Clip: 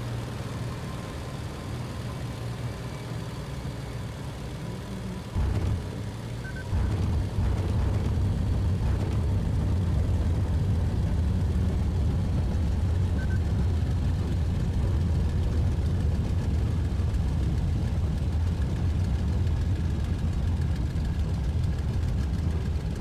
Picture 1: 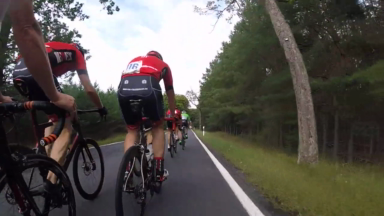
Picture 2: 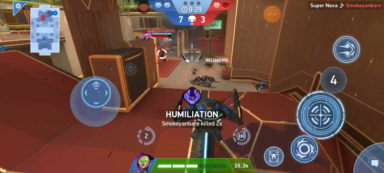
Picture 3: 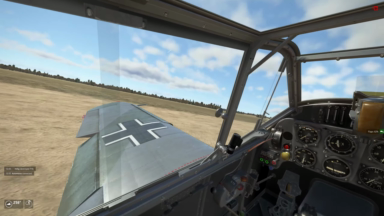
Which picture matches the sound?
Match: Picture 3